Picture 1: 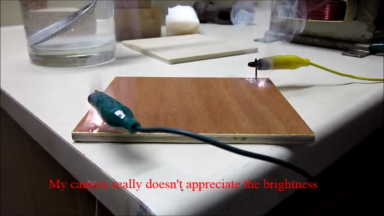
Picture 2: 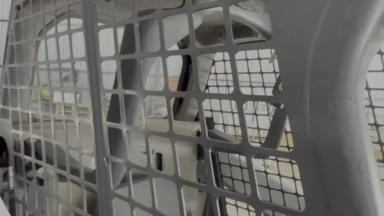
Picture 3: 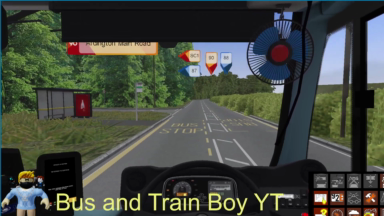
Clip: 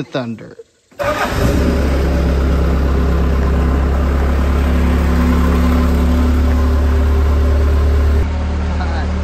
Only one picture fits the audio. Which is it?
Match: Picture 2